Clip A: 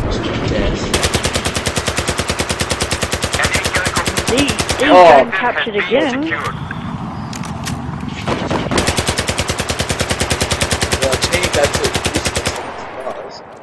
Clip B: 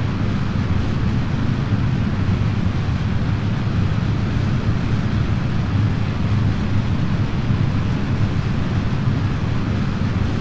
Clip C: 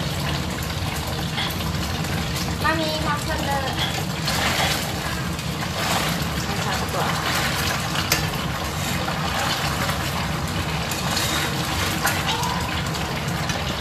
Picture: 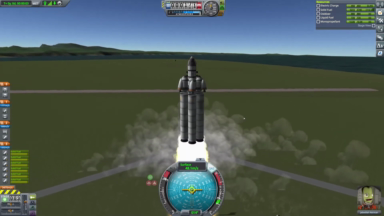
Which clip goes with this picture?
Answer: B